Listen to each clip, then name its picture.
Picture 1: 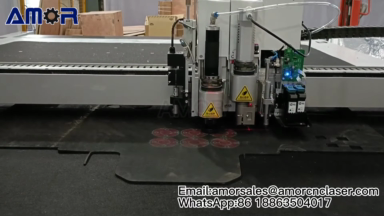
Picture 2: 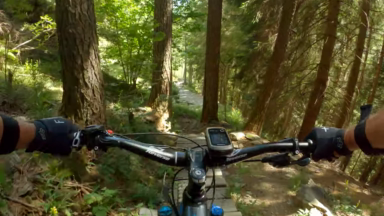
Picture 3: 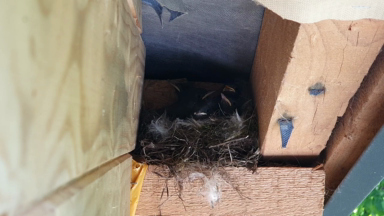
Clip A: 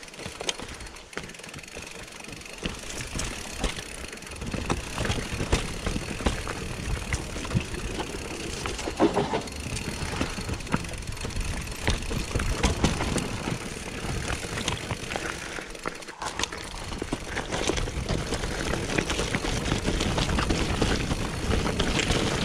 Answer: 2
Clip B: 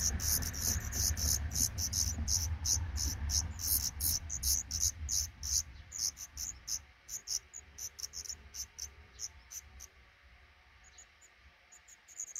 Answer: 3